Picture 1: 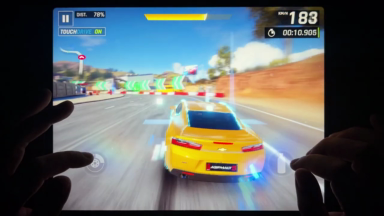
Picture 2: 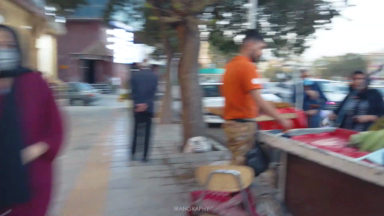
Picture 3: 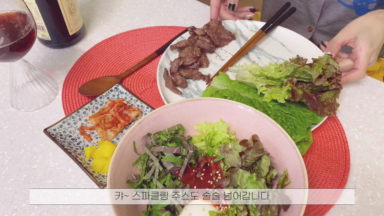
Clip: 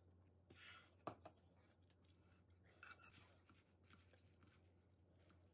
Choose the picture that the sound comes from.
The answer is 3